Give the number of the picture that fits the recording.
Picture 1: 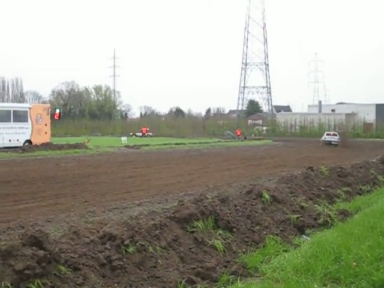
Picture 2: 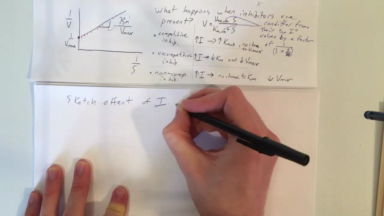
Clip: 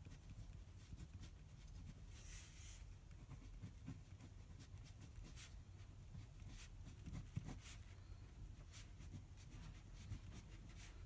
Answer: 2